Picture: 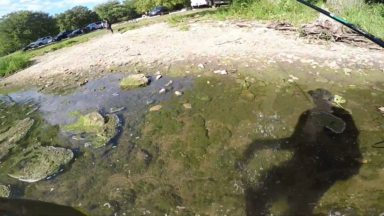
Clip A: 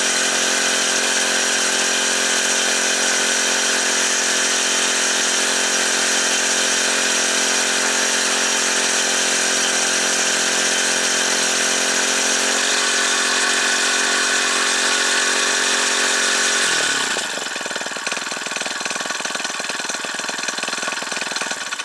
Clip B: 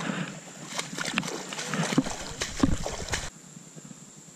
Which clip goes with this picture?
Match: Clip B